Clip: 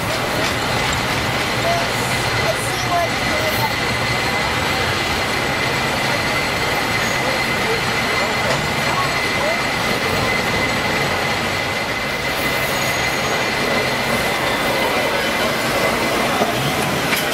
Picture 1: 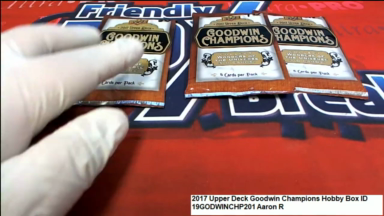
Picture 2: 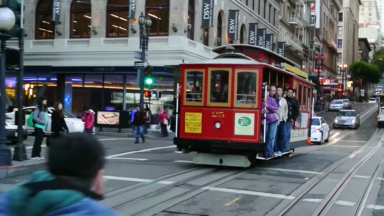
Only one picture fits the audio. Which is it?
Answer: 2